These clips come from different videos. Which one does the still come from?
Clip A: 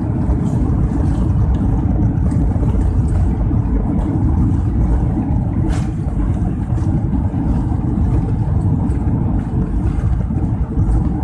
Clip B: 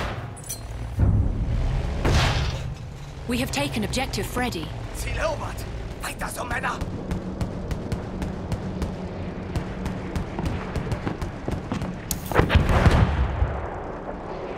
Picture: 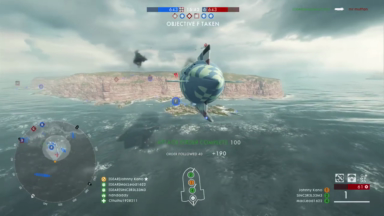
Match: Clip B